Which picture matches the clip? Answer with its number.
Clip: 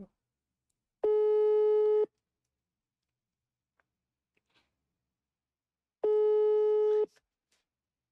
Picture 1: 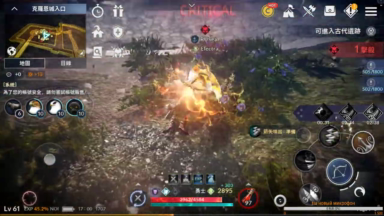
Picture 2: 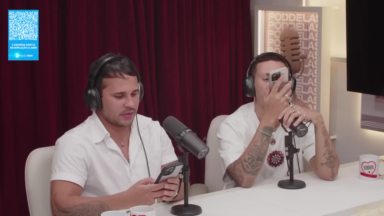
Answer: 2